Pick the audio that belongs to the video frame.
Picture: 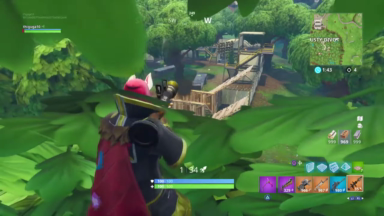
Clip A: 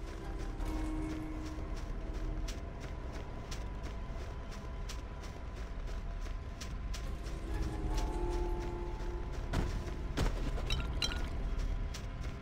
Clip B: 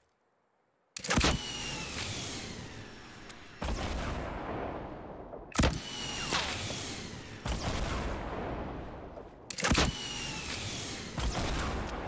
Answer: B